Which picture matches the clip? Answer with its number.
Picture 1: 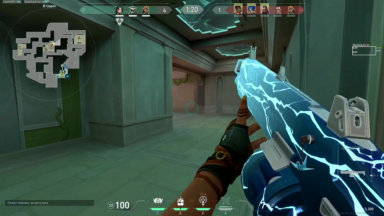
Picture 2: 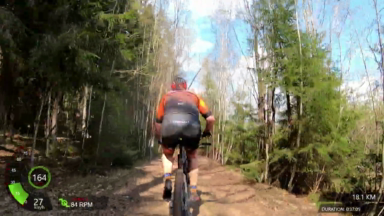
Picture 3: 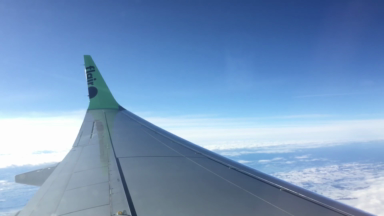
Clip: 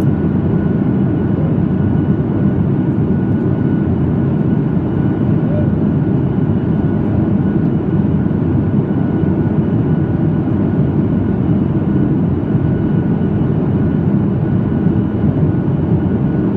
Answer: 3